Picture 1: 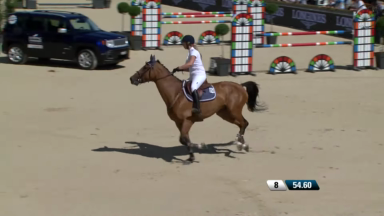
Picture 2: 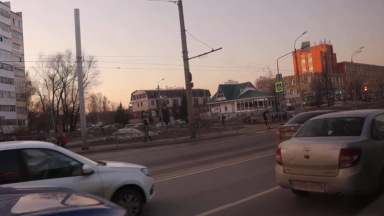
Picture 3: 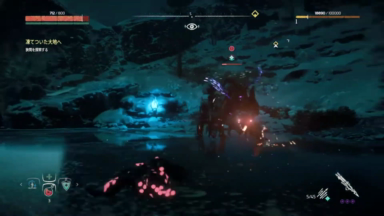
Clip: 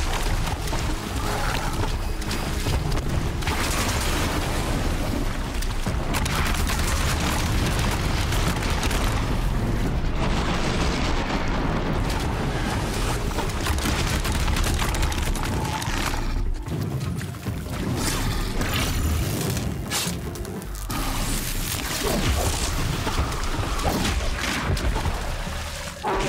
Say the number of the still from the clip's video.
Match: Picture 3